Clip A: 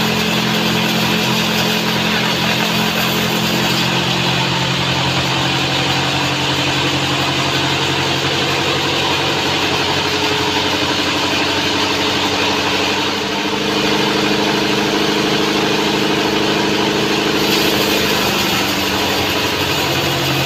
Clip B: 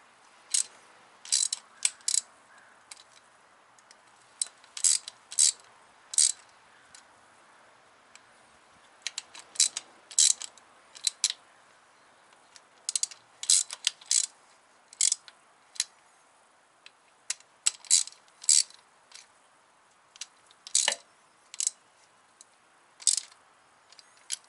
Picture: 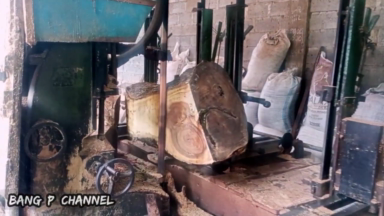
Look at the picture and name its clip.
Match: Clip A